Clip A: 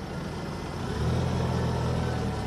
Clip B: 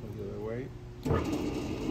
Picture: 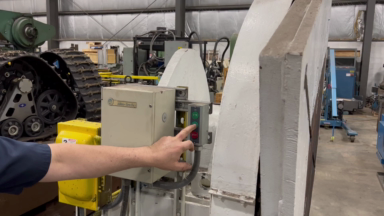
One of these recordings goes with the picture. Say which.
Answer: B